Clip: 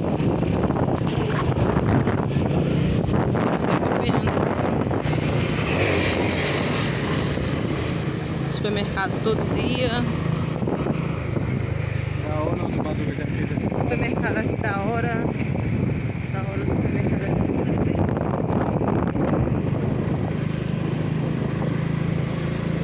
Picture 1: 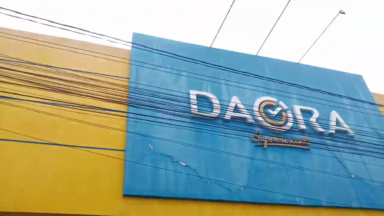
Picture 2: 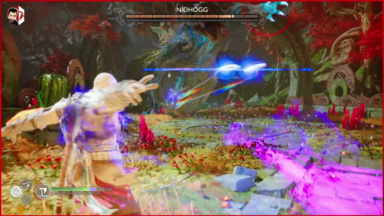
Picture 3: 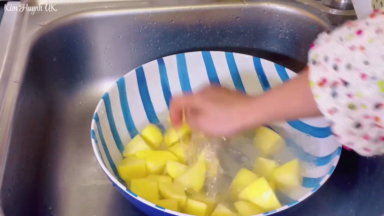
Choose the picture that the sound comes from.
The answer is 1